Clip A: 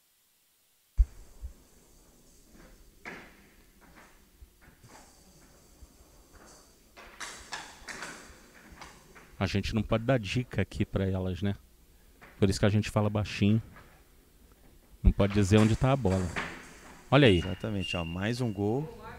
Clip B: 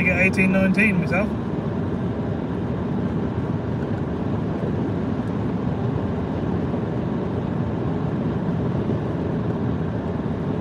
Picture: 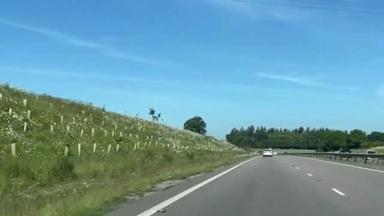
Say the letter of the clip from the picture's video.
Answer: B